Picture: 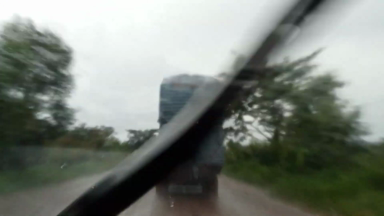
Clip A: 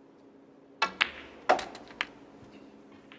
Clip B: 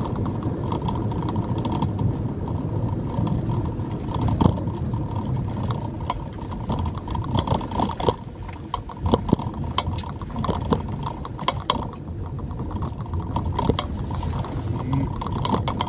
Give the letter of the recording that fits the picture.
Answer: B